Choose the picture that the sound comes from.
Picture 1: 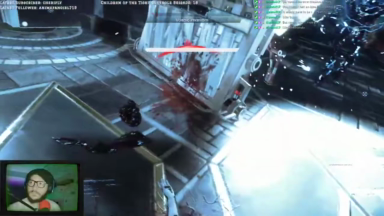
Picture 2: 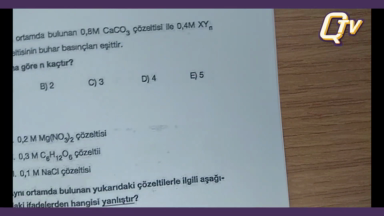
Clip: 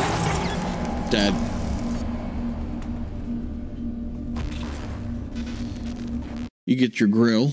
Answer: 1